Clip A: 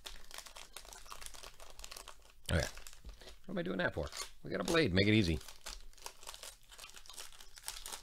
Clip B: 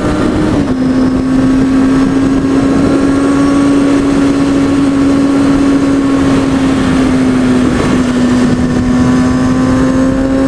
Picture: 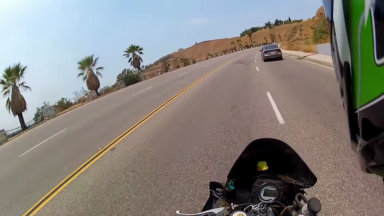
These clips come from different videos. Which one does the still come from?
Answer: B